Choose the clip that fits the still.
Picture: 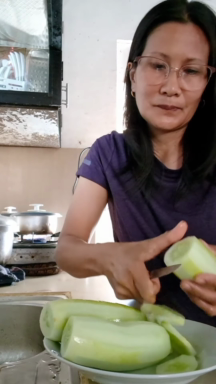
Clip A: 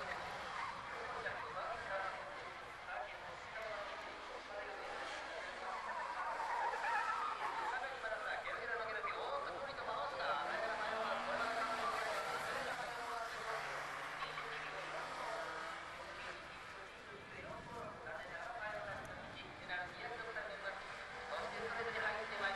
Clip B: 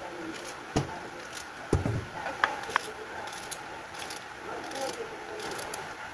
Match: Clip B